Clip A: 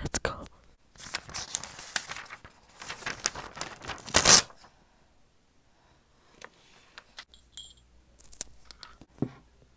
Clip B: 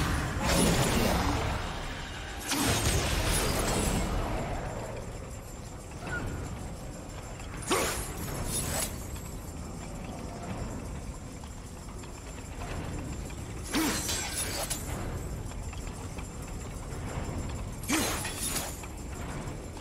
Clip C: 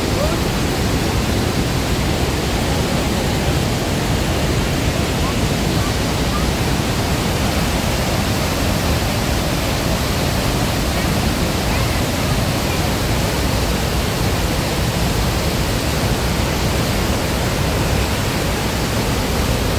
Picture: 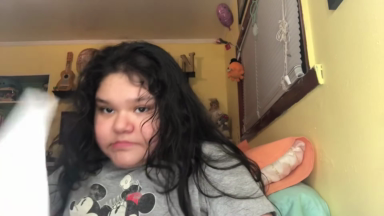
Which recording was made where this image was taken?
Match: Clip A